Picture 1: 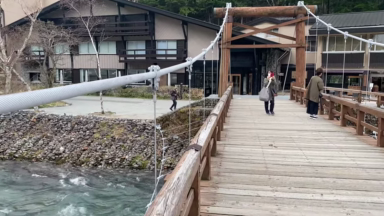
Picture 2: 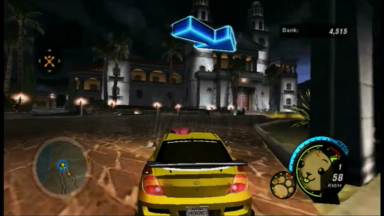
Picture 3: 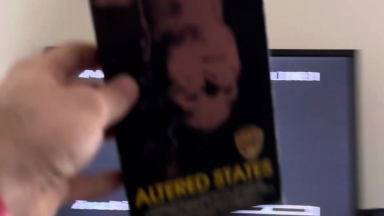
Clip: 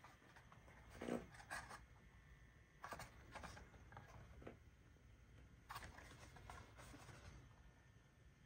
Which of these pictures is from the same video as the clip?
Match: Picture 3